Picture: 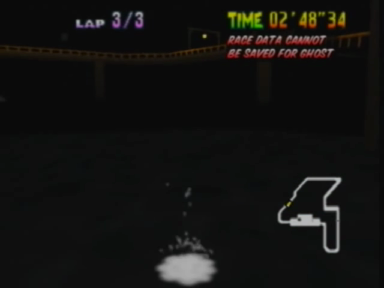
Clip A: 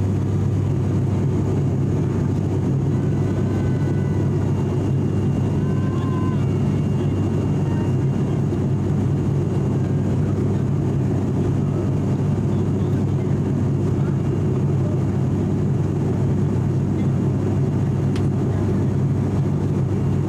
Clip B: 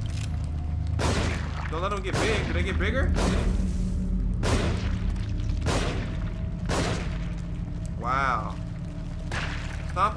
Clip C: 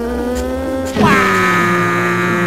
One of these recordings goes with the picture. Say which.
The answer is C